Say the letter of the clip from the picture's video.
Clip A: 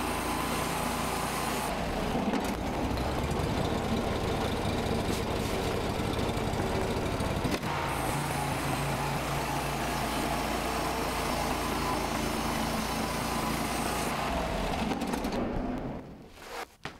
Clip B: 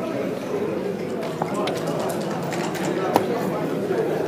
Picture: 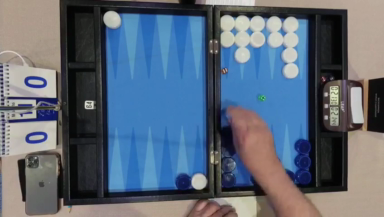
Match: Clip B